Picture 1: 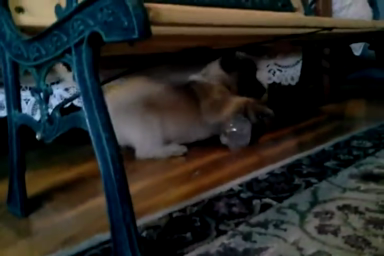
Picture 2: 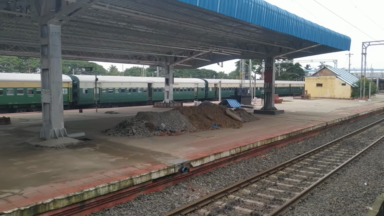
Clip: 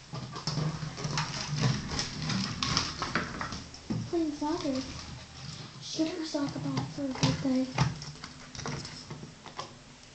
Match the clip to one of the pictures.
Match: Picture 1